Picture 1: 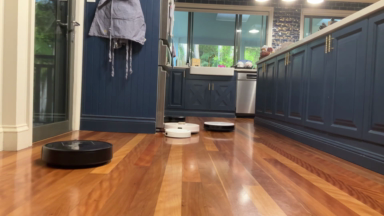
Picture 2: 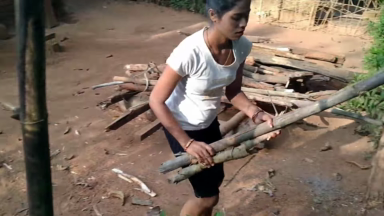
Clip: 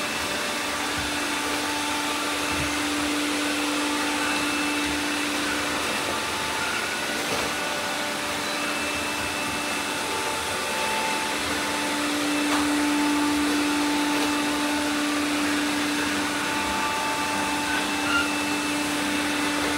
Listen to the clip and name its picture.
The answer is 1